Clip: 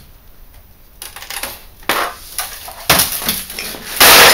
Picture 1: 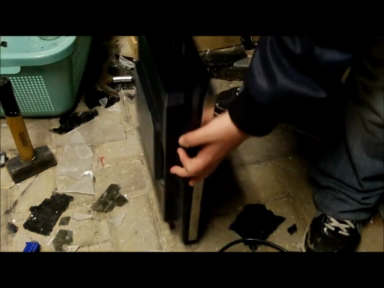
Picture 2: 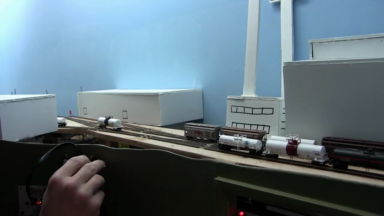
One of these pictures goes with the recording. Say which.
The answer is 1